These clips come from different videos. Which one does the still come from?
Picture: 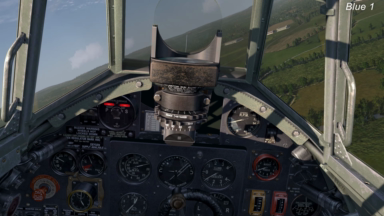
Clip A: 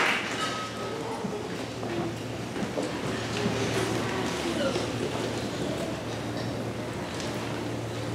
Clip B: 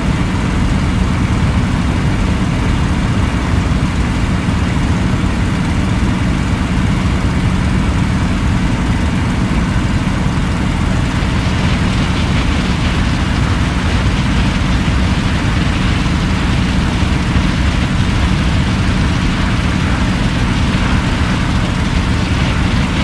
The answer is B